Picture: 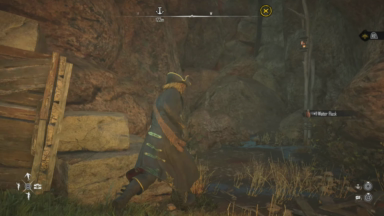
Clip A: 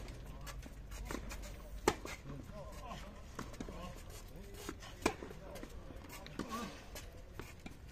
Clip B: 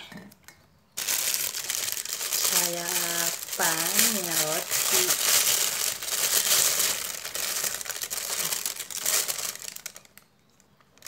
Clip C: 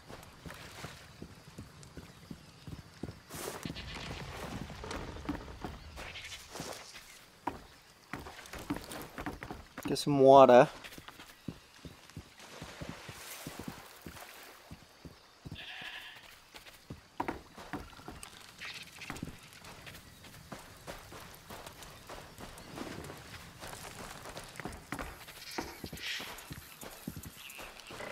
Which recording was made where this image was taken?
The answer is C